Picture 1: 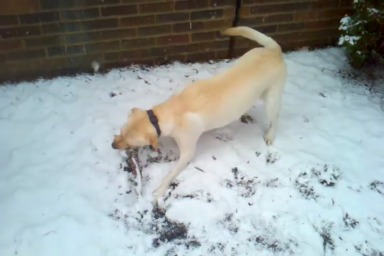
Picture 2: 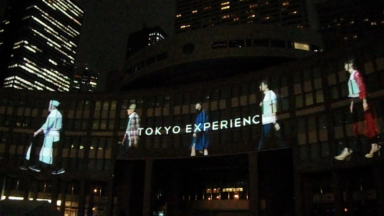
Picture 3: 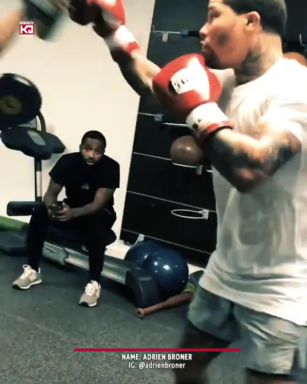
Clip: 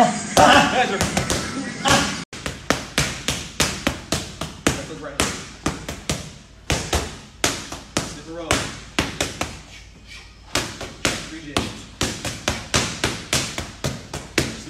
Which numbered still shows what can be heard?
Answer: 3